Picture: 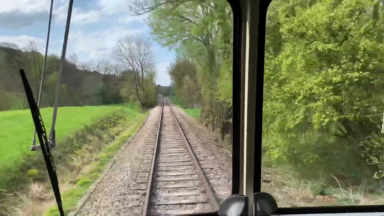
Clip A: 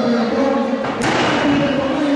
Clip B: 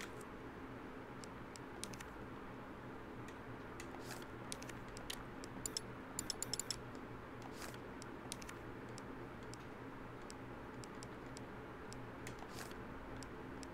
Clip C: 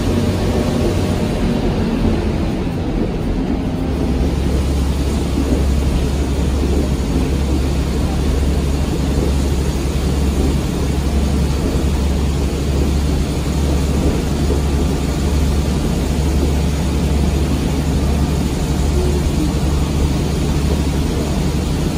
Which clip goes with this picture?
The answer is C